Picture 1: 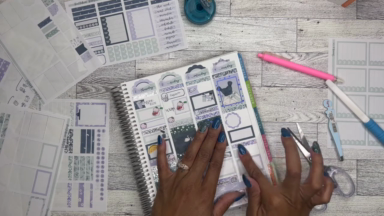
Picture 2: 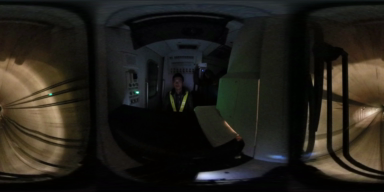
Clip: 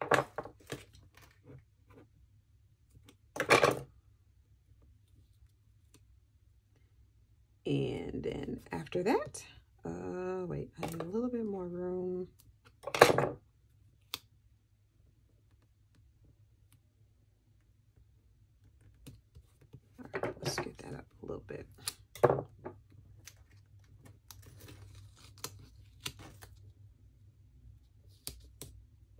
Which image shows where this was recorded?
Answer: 1